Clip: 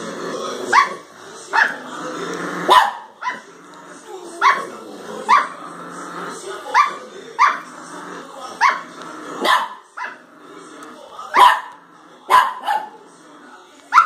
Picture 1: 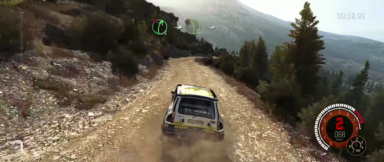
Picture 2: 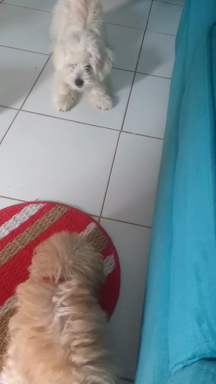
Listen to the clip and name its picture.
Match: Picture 2